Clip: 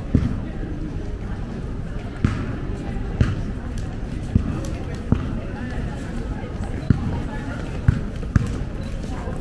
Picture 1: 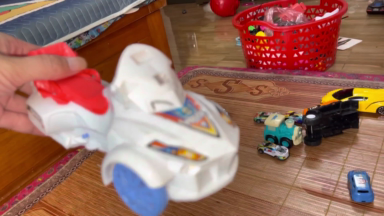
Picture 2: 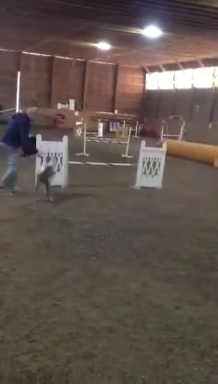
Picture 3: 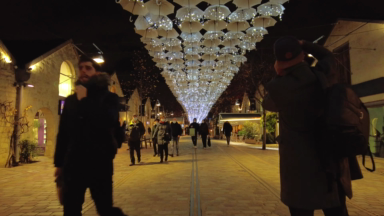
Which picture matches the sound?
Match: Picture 3